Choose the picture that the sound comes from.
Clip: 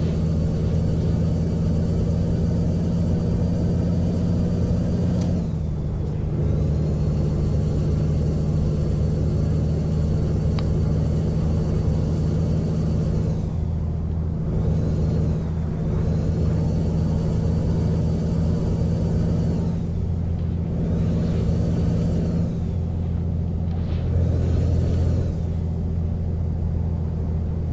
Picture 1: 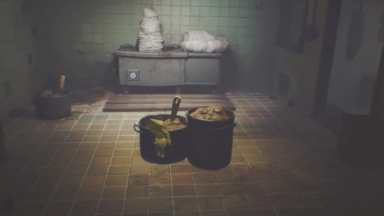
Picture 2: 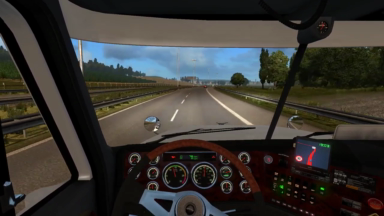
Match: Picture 2